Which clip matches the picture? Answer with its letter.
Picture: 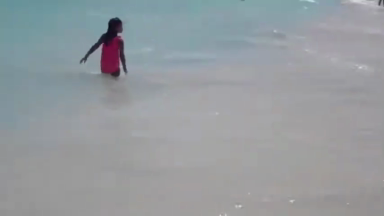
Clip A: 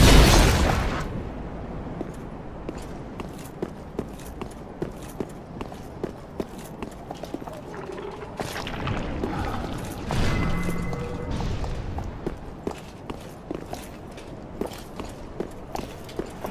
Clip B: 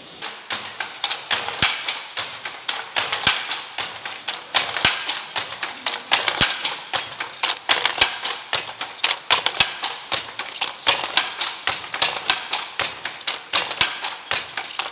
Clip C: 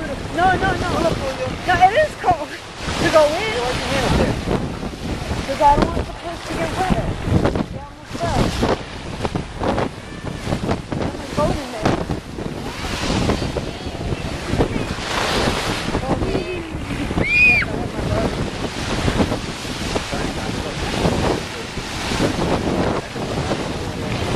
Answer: C